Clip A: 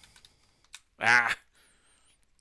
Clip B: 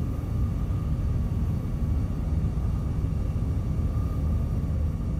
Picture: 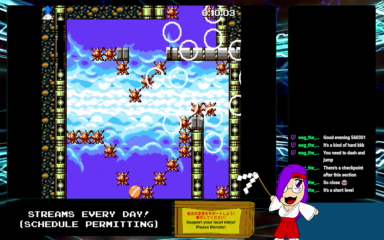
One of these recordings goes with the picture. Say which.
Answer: A